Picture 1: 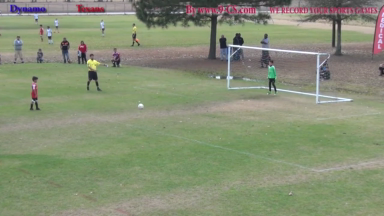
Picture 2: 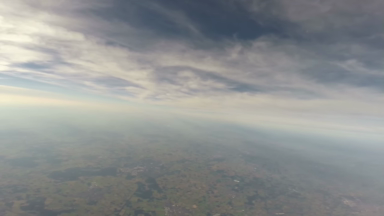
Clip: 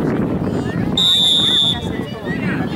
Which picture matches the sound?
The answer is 1